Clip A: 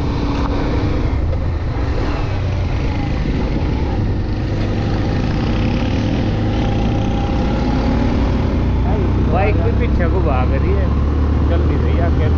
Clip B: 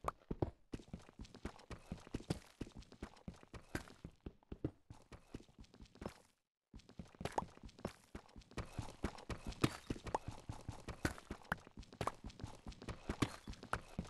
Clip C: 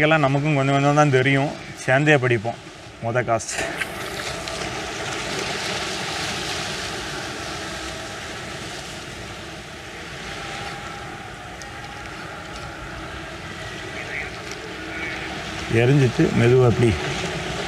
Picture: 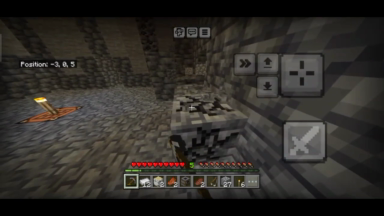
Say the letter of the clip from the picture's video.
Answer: B